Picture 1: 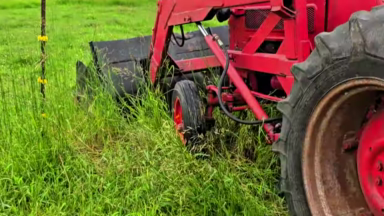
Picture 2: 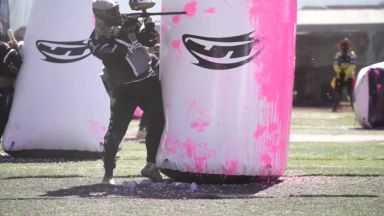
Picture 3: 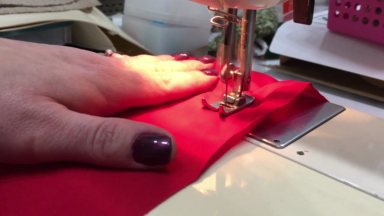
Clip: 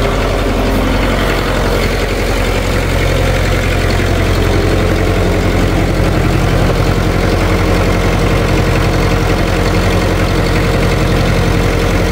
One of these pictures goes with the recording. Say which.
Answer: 1